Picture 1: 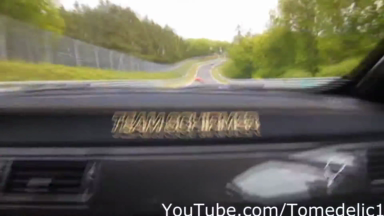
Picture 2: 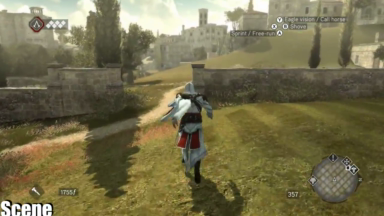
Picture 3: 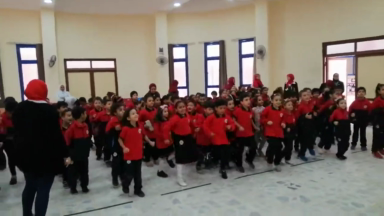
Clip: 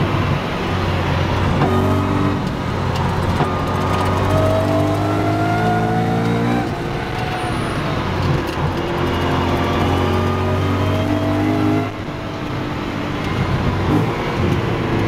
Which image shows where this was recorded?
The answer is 1